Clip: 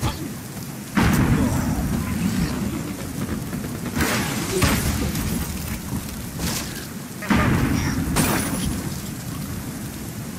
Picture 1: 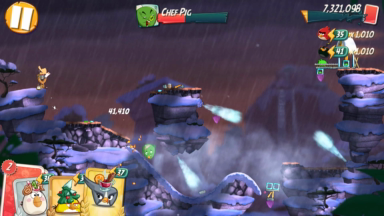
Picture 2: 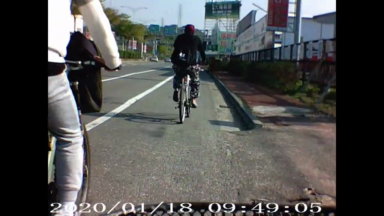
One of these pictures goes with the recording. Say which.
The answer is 1